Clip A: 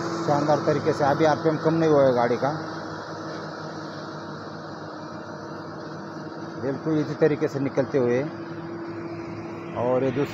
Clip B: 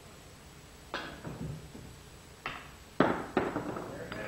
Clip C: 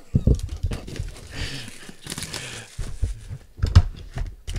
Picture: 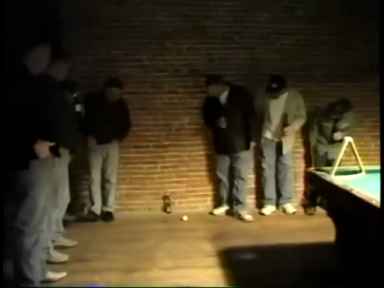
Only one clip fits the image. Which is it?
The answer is B